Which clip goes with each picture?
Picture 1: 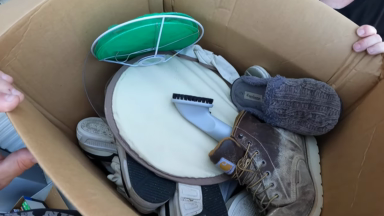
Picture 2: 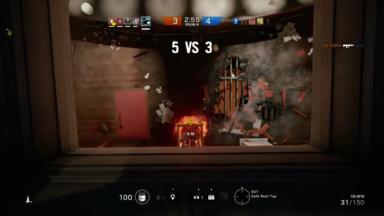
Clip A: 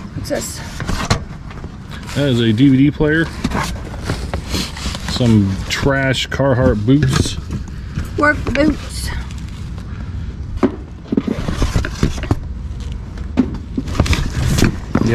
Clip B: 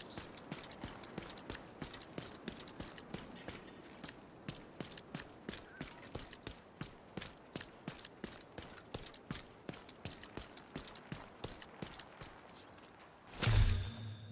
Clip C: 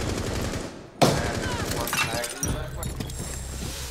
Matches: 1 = A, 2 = C